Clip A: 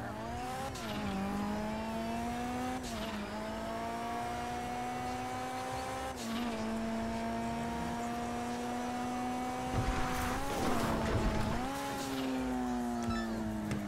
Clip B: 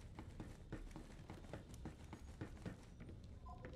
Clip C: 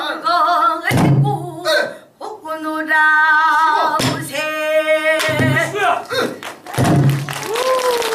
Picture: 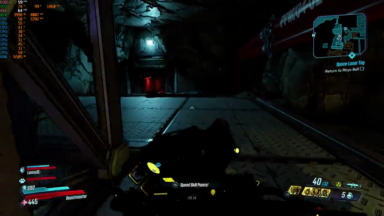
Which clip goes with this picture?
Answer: B